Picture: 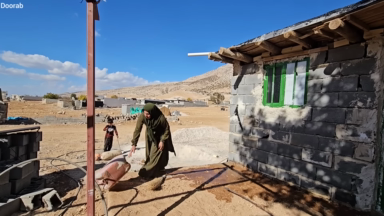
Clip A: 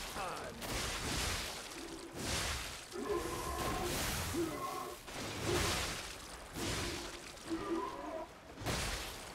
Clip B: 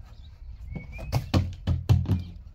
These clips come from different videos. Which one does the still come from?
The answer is B